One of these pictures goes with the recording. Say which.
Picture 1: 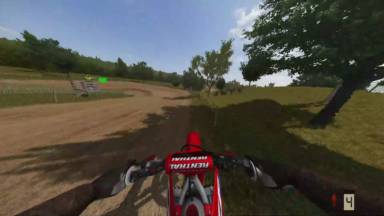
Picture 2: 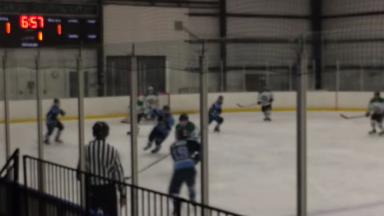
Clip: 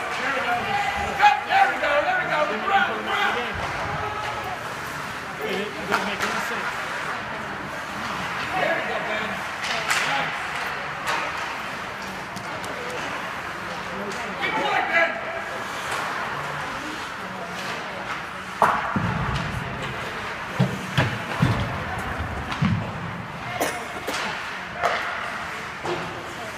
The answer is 2